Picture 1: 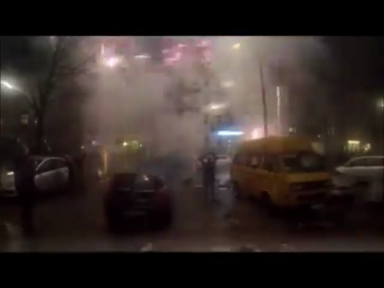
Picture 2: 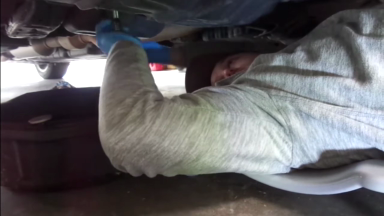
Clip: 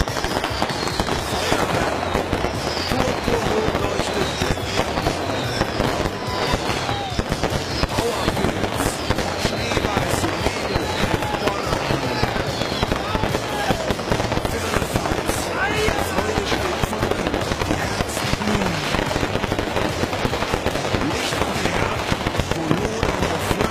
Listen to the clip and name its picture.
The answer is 1